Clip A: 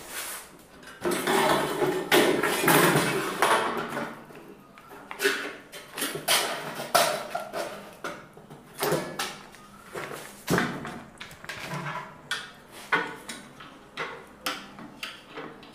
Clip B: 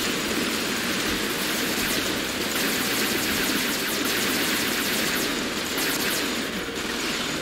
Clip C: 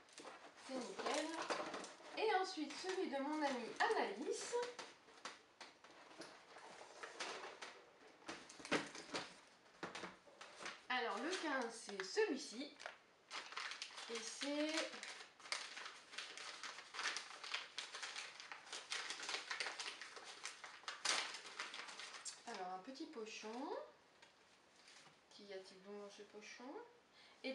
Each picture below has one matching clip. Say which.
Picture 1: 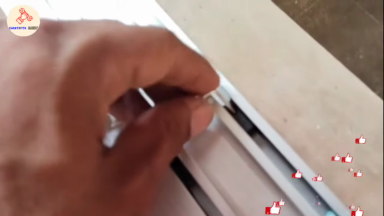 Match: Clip A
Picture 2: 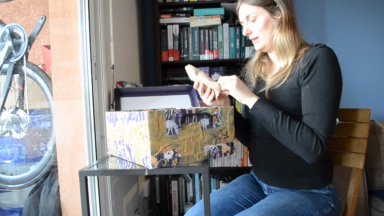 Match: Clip C